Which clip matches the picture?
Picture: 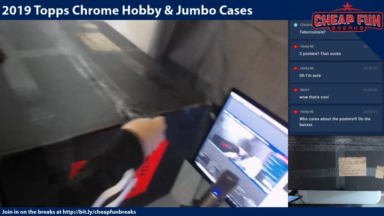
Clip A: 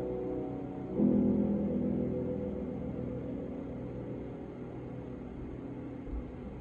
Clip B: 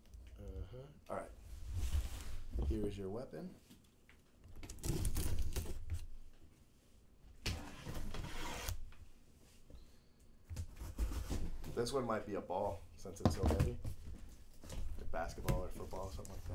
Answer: B